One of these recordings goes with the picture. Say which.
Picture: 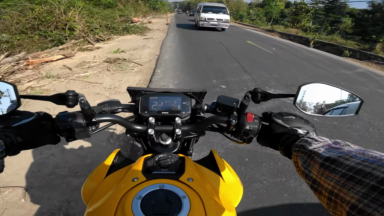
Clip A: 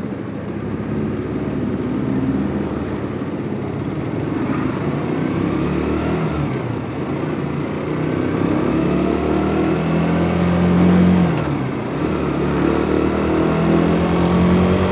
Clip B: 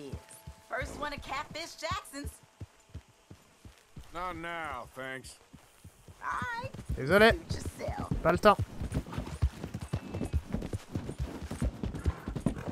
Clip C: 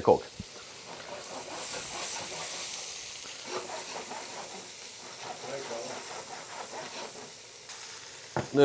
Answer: A